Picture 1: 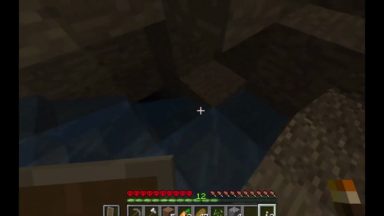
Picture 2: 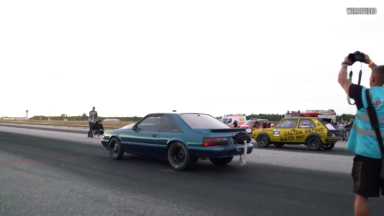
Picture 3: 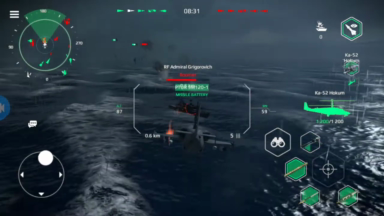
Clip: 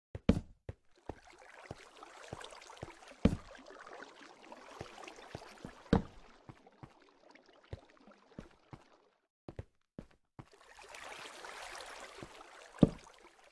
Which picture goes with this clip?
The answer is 1